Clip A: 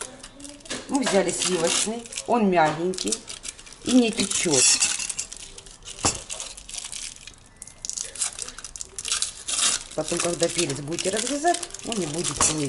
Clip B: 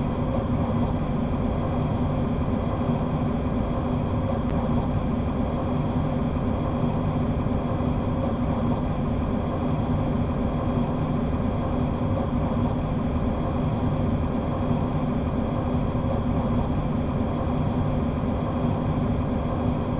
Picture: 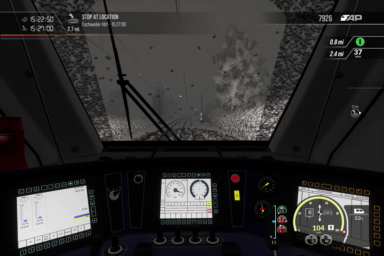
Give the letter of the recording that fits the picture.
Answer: B